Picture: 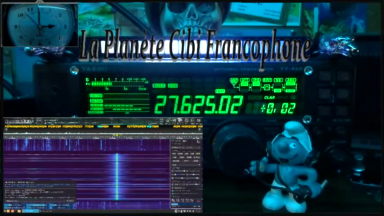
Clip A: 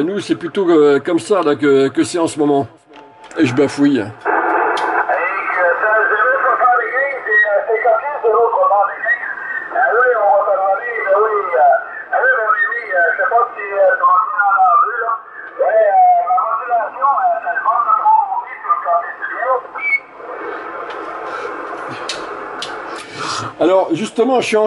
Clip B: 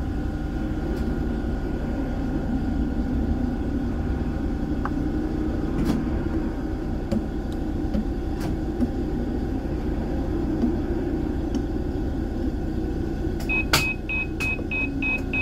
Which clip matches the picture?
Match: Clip A